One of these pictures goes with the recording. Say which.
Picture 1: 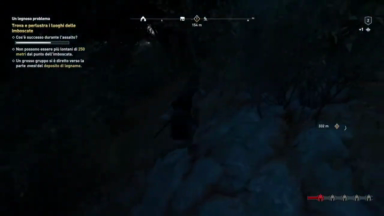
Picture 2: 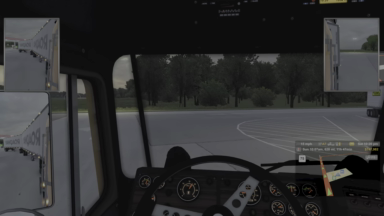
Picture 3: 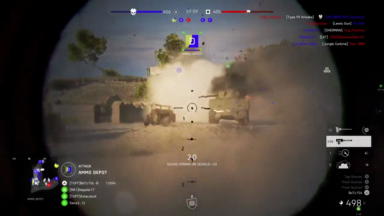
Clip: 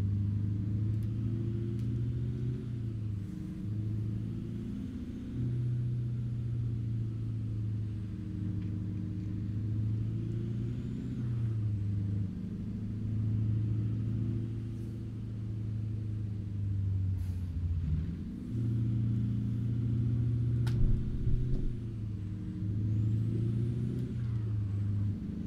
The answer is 2